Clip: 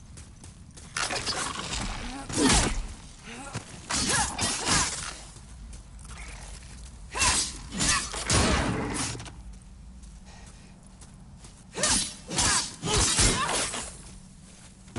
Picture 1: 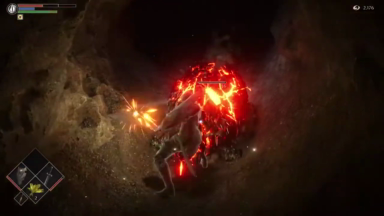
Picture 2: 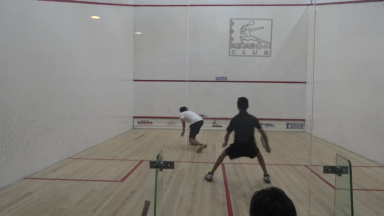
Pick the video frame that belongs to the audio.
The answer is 1